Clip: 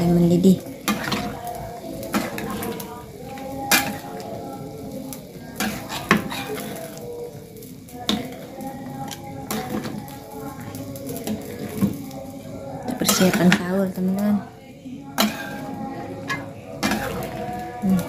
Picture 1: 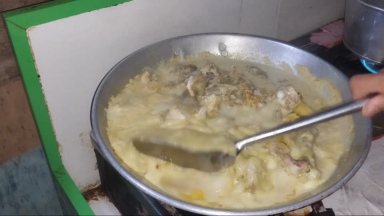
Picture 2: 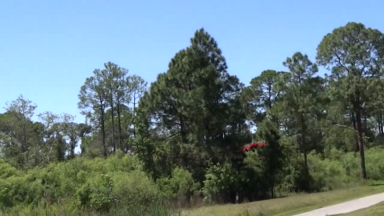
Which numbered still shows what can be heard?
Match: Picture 1